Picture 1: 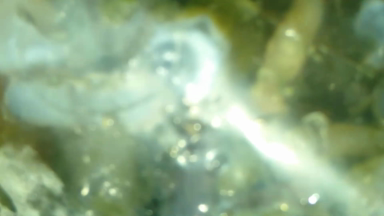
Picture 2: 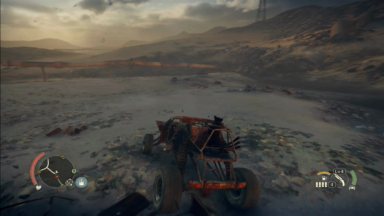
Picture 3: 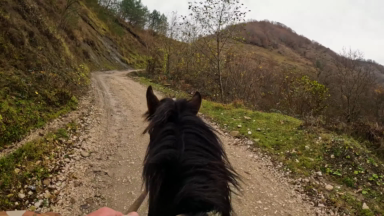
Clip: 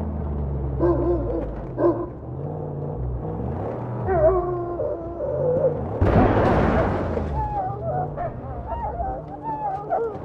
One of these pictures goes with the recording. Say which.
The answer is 2